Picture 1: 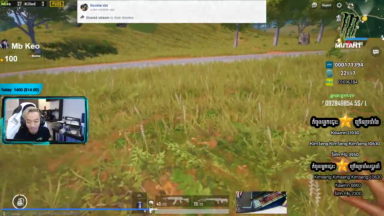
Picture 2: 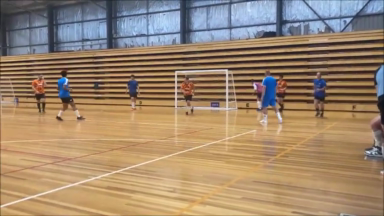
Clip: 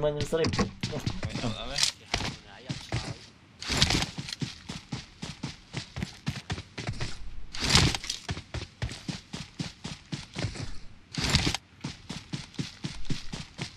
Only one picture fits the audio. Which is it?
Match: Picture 1